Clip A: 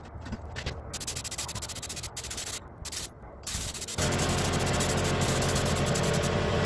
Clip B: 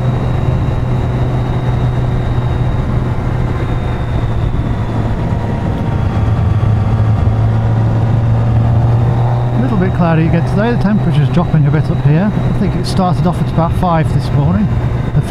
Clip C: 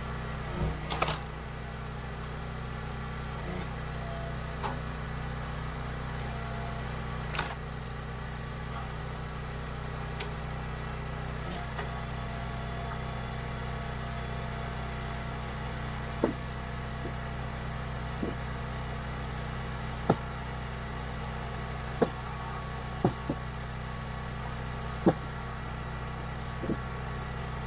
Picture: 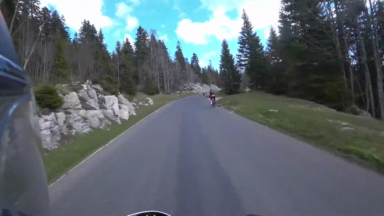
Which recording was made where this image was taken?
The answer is B